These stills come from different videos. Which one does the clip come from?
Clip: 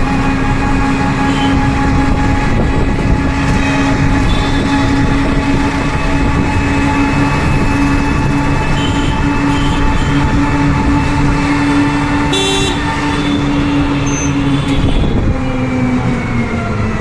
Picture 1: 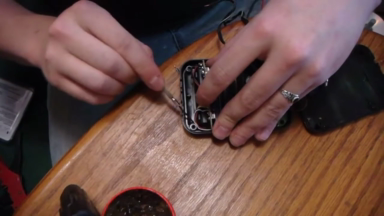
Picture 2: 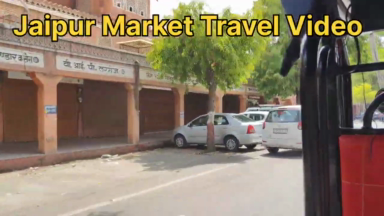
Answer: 2